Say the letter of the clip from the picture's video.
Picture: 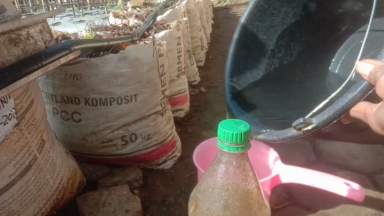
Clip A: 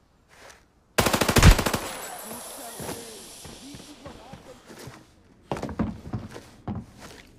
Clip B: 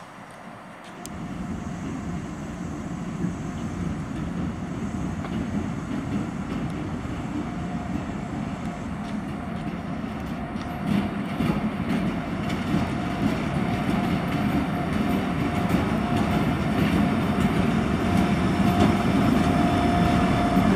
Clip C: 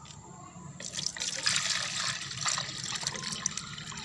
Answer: C